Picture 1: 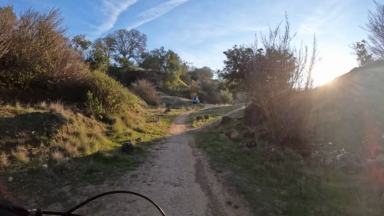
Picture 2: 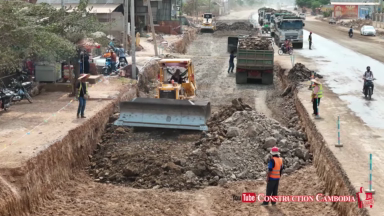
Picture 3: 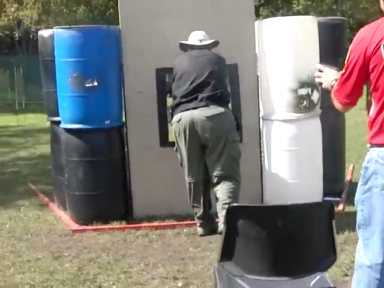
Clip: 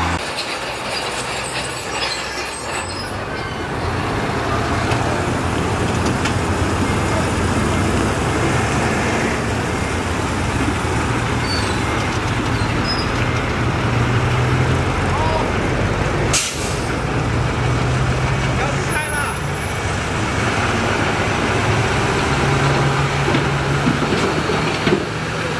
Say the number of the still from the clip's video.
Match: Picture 2